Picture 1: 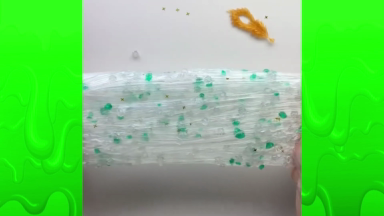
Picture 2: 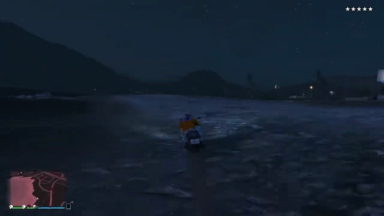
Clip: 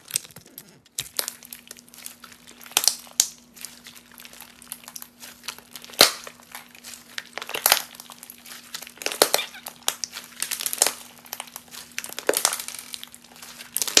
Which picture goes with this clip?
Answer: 1